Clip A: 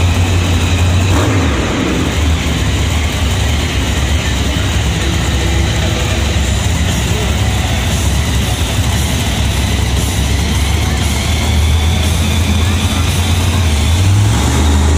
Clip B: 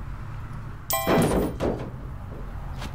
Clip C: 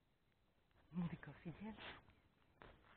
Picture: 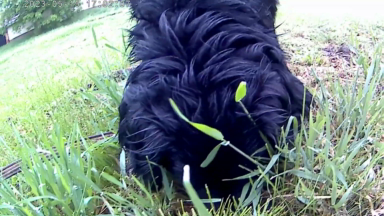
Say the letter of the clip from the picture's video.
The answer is C